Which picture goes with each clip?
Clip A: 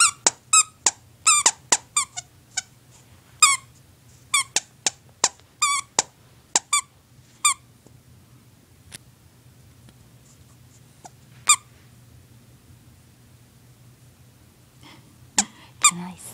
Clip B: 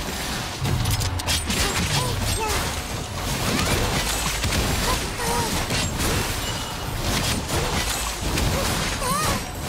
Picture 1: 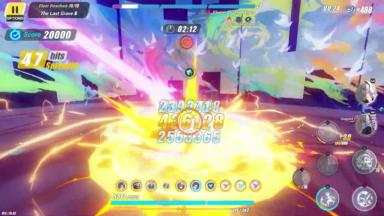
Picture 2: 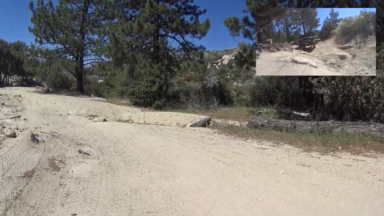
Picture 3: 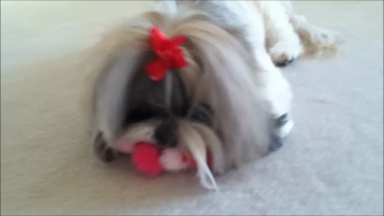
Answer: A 3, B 1